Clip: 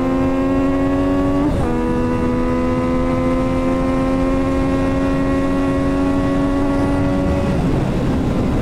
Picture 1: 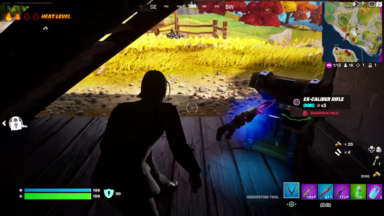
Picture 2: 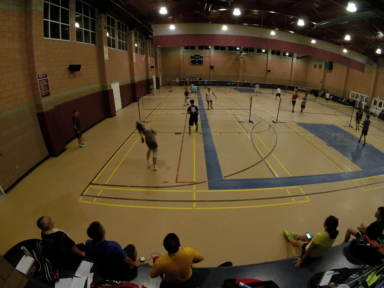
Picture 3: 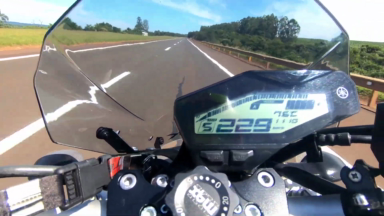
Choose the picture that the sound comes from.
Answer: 3